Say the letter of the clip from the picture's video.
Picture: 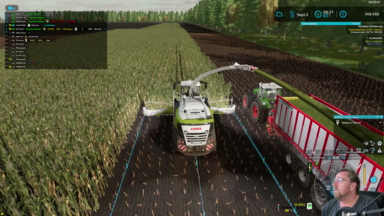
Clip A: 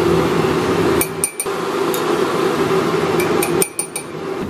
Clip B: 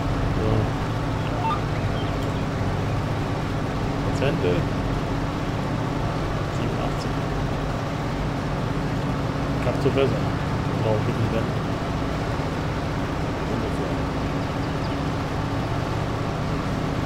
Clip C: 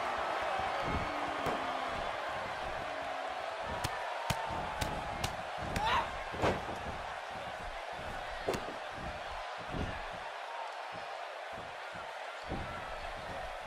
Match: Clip B